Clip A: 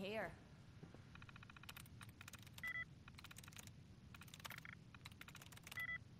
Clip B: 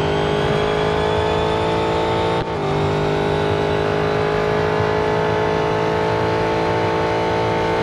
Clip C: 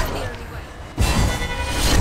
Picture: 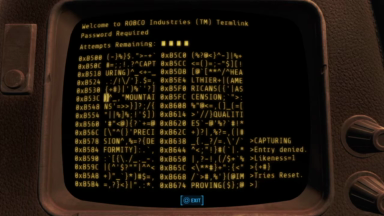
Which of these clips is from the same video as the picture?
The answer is A